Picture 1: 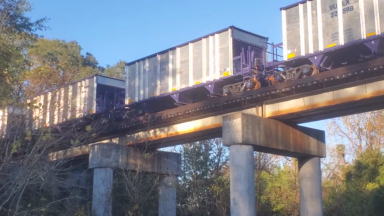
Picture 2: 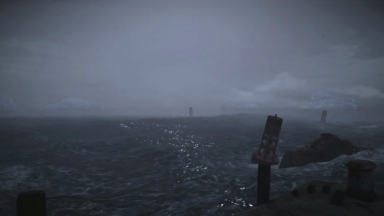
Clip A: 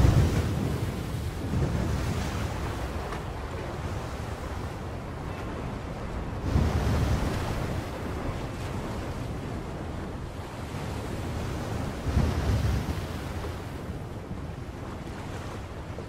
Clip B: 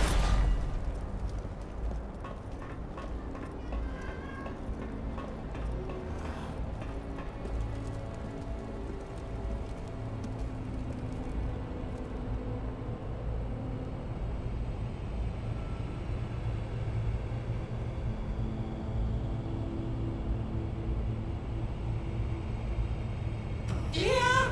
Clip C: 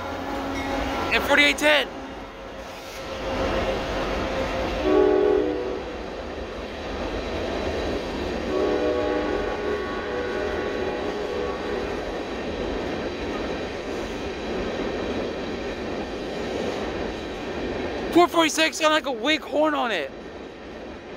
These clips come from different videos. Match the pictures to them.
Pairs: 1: C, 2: A